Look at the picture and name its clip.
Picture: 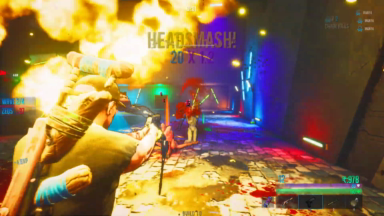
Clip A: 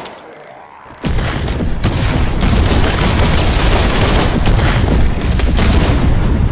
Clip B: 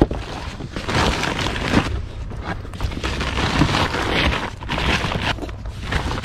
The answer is A